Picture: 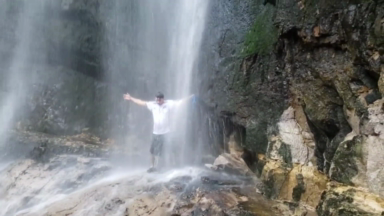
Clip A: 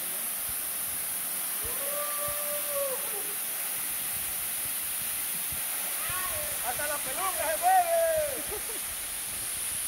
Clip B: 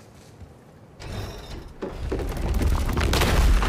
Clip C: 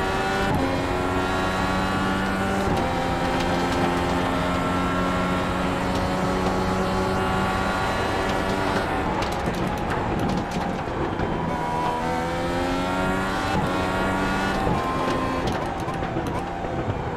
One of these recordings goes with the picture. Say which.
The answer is A